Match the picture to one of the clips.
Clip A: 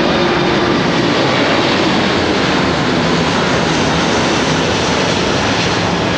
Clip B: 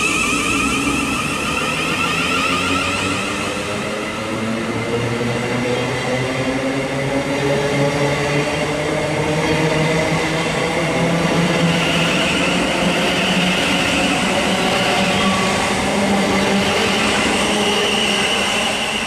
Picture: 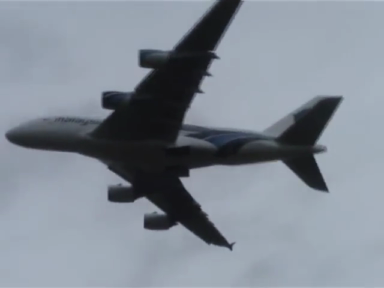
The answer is A